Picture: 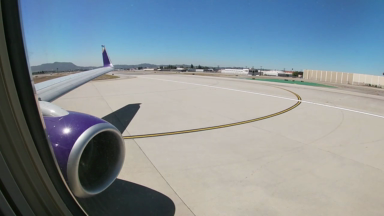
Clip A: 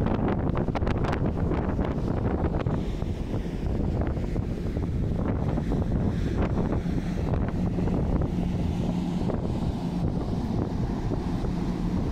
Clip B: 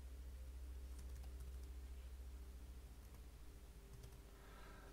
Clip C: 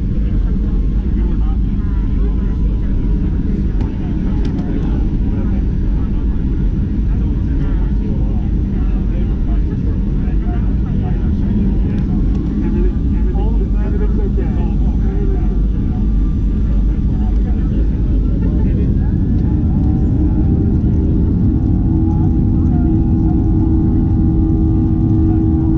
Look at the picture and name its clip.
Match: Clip C